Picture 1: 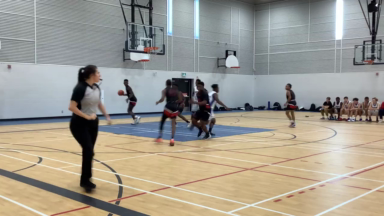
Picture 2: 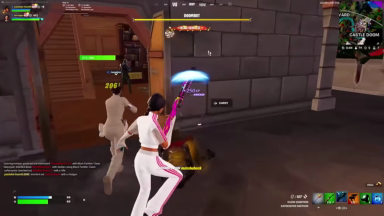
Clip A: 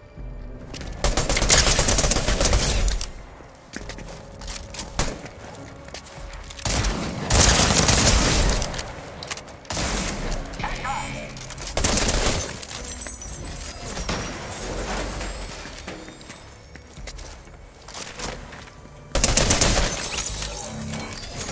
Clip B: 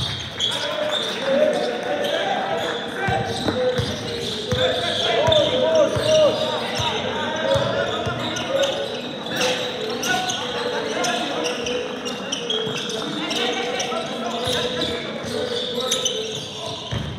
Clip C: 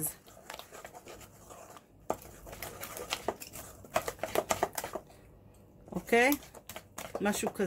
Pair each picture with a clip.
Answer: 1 B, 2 A